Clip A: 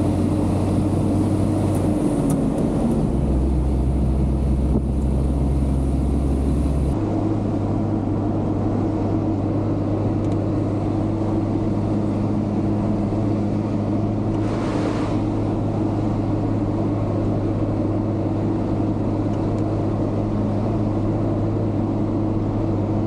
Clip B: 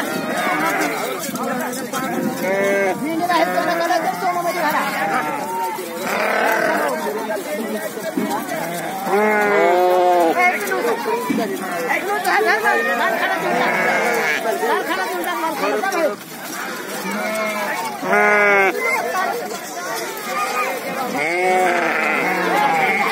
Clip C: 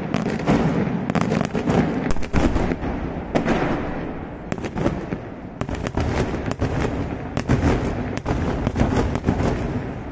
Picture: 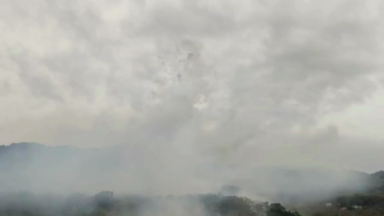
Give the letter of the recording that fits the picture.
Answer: C